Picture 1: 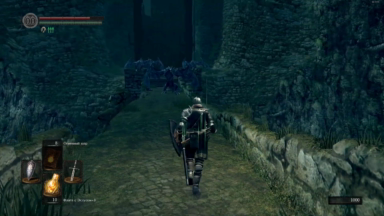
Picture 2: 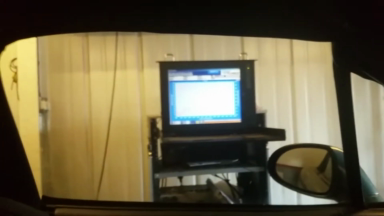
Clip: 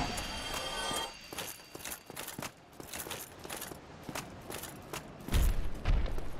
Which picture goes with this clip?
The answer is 1